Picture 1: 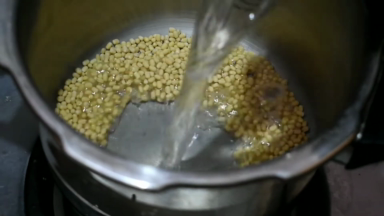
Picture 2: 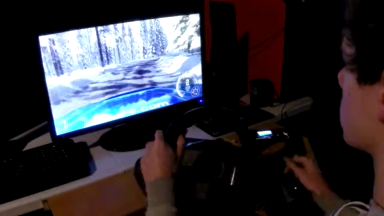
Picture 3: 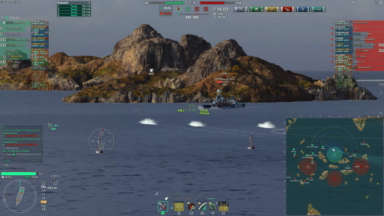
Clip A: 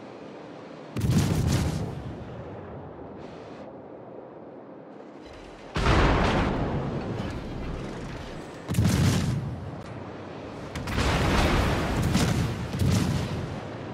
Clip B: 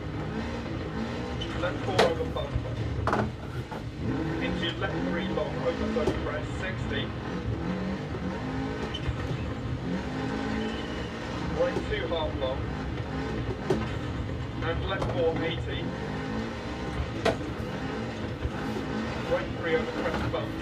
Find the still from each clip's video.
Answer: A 3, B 2